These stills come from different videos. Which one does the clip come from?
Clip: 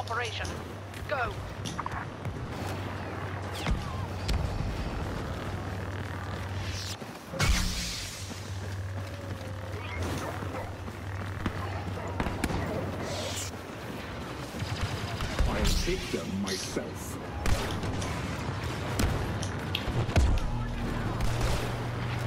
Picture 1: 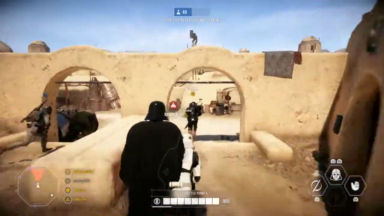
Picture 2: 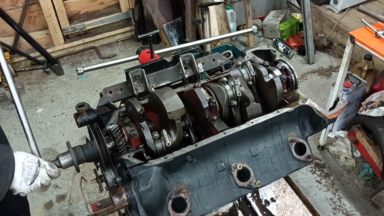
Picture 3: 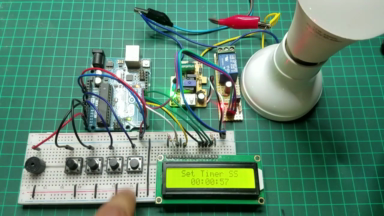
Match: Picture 1